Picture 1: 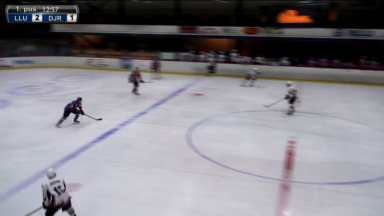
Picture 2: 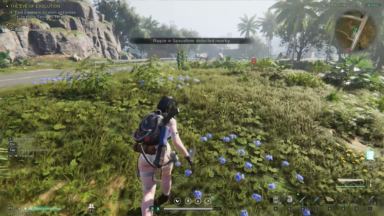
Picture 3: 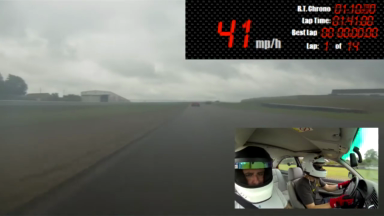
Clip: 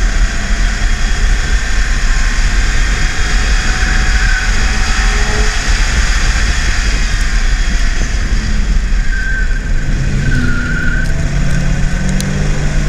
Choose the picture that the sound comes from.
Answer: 3